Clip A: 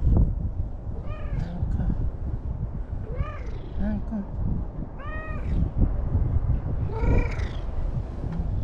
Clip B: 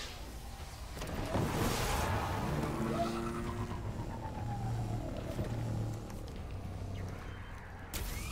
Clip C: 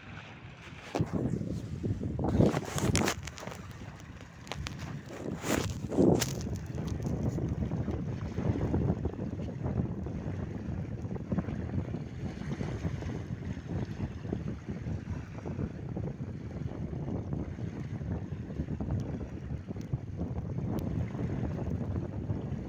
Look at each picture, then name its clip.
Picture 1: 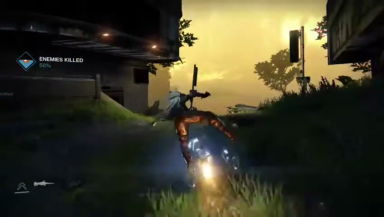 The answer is B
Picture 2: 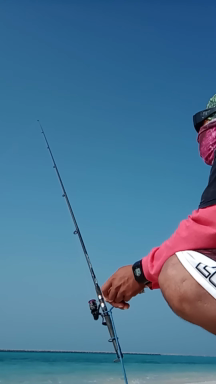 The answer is C